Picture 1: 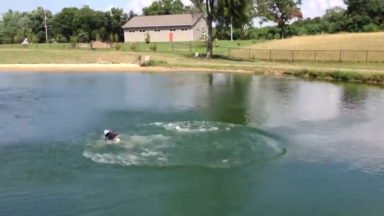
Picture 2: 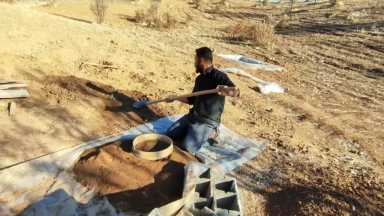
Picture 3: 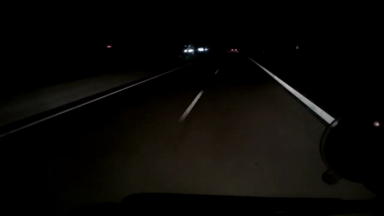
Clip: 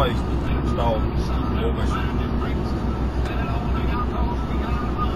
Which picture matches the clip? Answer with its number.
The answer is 3